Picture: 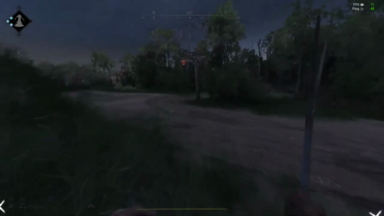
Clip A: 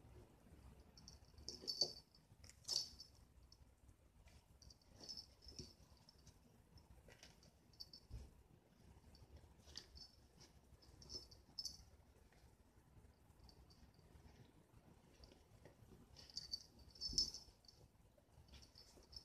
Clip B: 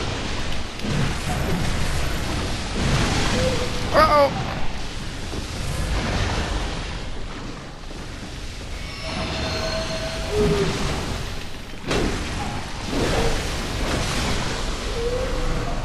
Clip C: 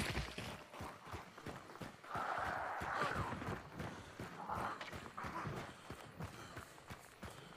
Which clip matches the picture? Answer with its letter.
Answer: C